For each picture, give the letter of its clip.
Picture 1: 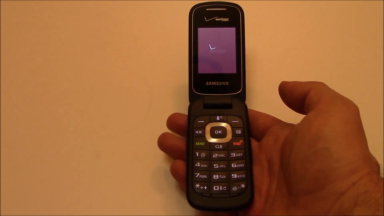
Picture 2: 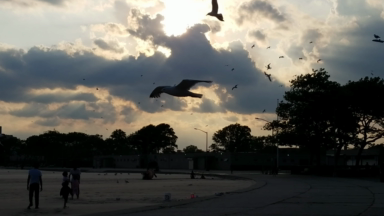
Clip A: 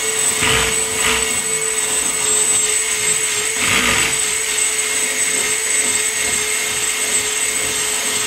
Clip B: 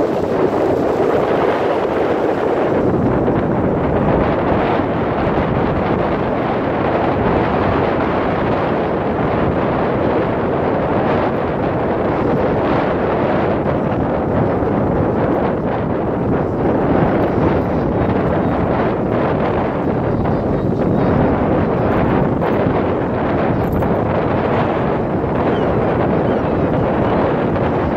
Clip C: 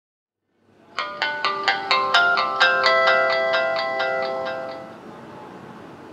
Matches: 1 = C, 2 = B